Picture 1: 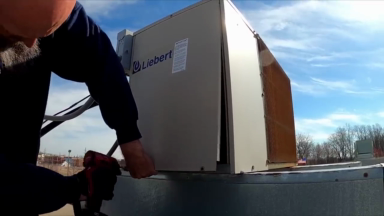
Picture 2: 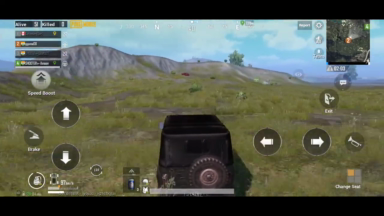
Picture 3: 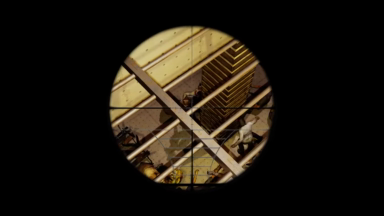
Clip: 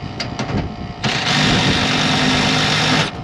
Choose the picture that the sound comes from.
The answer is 1